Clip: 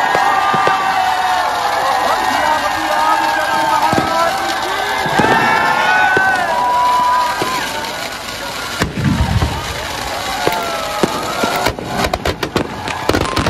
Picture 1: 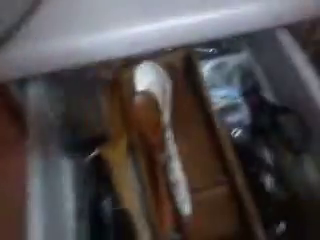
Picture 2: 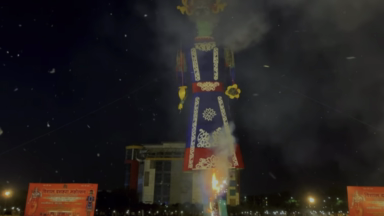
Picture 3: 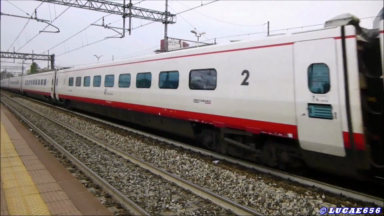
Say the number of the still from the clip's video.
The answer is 2